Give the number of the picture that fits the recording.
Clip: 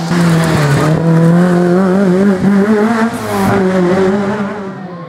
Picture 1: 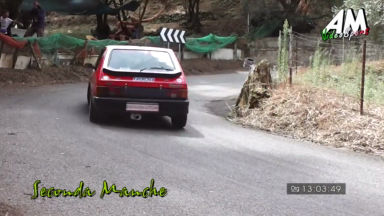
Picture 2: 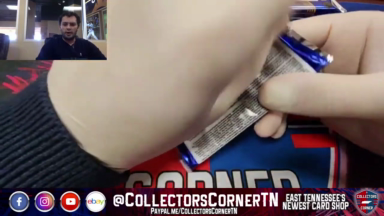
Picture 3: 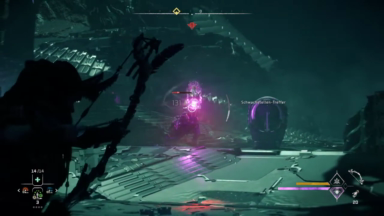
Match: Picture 1